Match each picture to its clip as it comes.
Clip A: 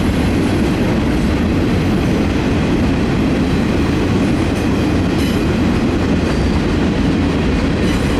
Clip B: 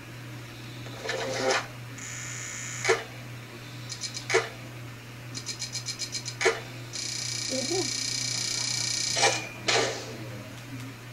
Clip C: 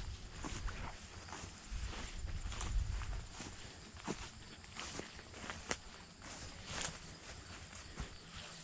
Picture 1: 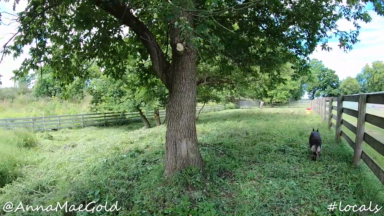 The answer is C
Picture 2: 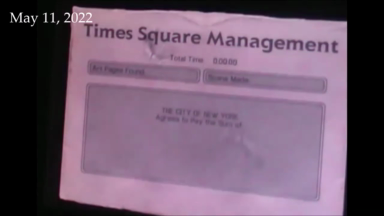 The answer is B